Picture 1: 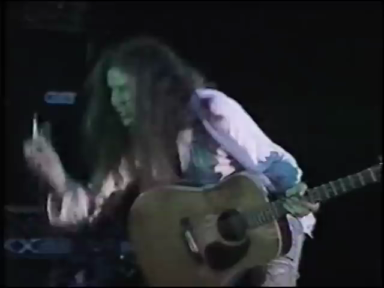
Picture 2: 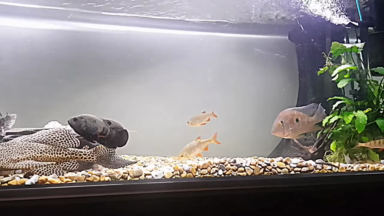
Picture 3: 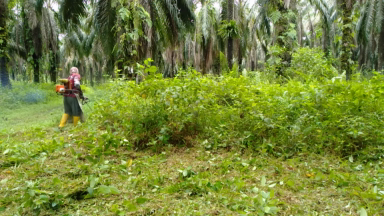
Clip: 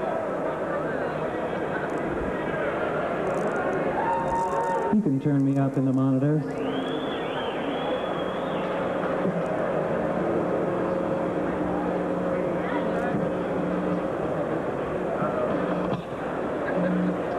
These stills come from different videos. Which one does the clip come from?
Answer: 1